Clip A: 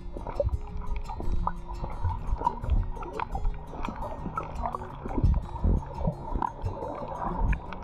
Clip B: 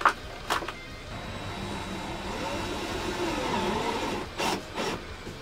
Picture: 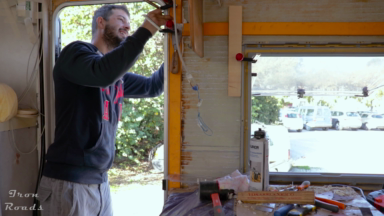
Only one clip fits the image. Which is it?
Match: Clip B